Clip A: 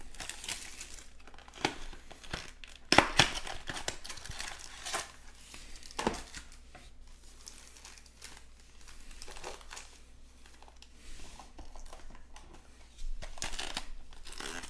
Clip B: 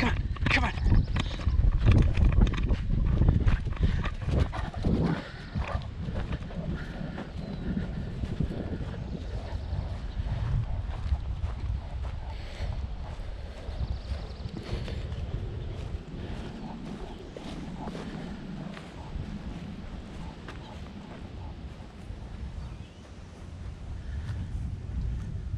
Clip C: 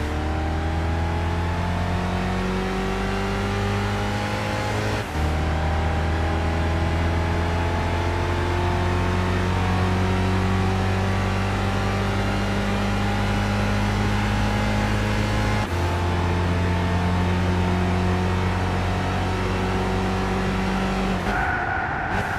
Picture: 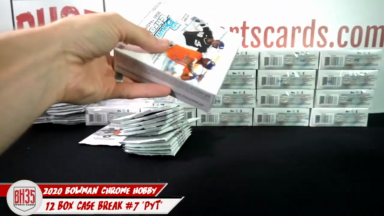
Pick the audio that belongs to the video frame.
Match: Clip A